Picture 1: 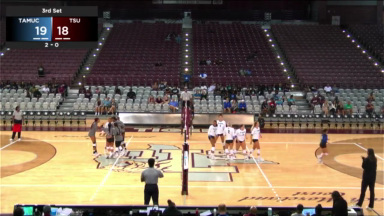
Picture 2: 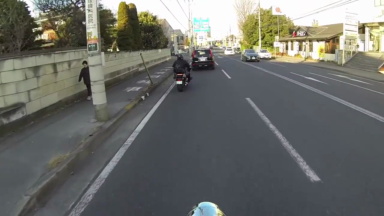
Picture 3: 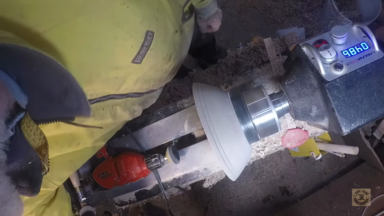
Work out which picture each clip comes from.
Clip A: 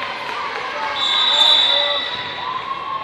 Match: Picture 1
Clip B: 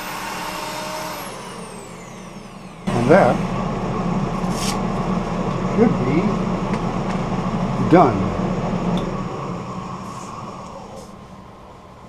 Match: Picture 3